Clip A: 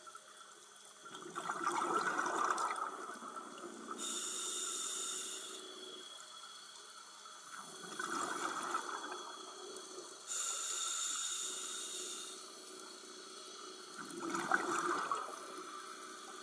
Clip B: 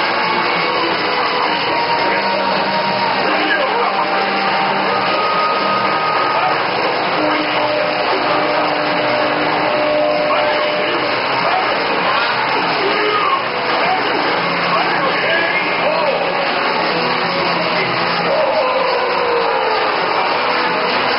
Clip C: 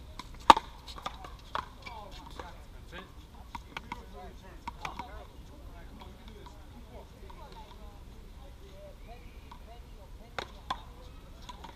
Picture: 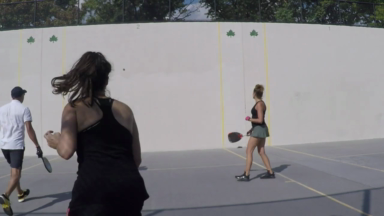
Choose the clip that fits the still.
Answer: C